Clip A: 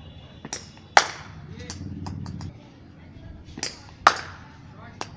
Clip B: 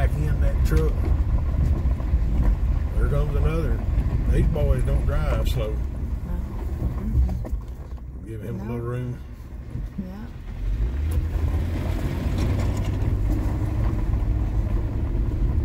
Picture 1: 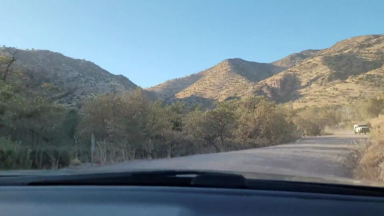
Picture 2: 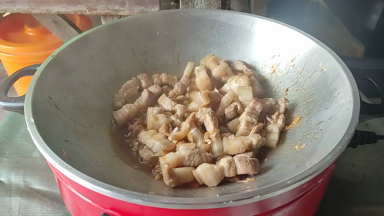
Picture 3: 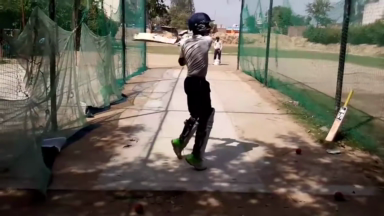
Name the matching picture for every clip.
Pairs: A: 3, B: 1